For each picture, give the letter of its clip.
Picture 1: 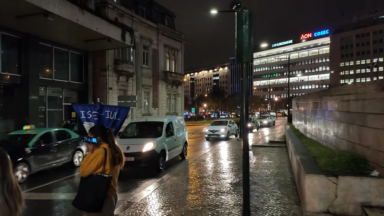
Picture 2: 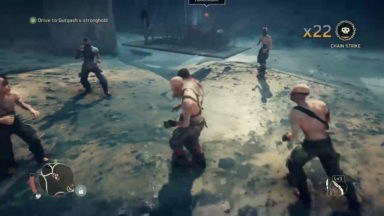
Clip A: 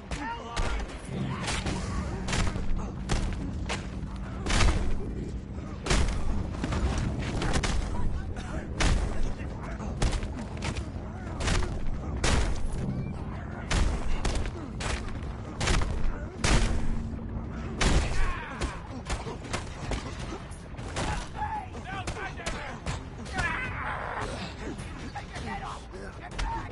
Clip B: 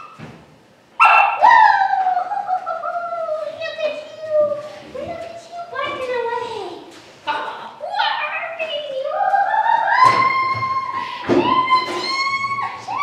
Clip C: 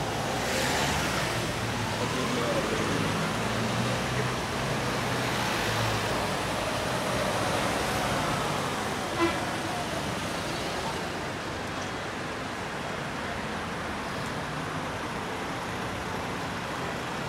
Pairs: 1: C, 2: A